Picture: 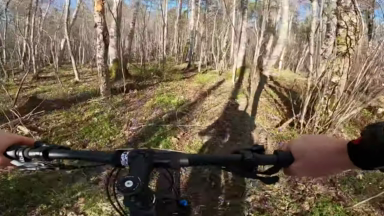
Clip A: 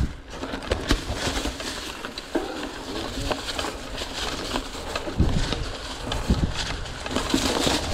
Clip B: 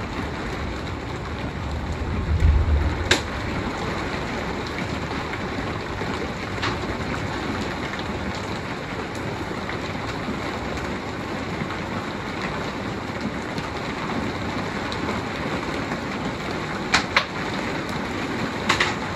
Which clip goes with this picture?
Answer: A